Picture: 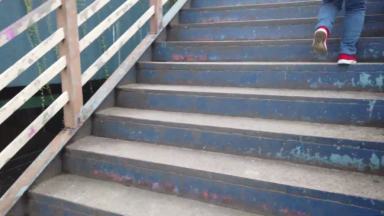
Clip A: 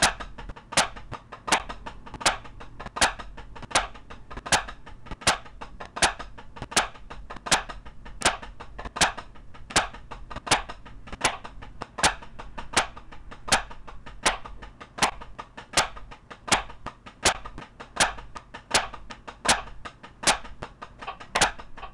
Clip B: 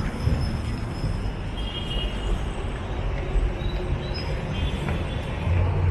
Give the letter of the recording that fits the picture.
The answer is B